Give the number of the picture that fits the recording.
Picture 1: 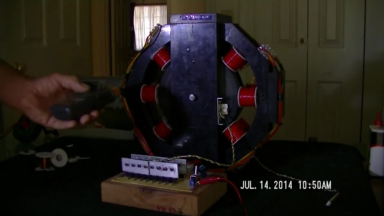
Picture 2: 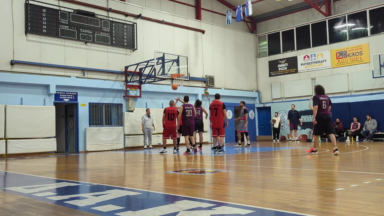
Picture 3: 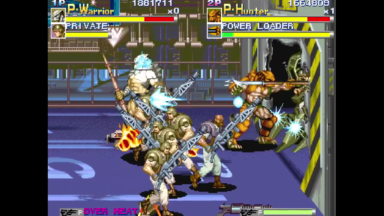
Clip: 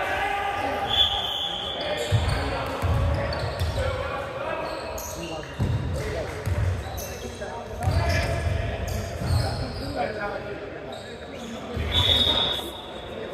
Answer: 2